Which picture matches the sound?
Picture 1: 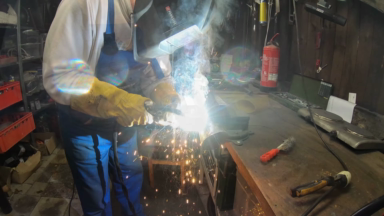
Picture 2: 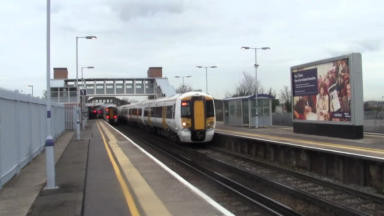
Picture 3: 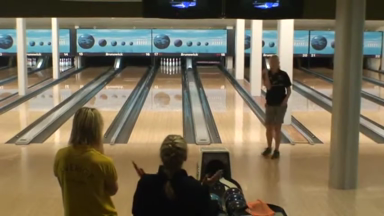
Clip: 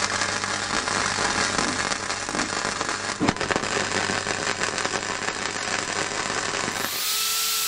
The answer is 1